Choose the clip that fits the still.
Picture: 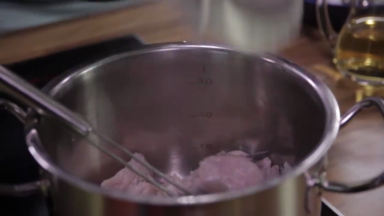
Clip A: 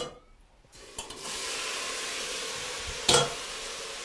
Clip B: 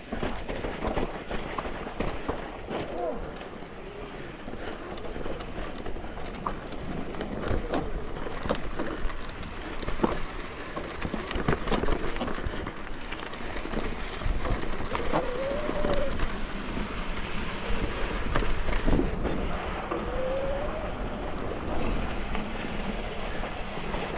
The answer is A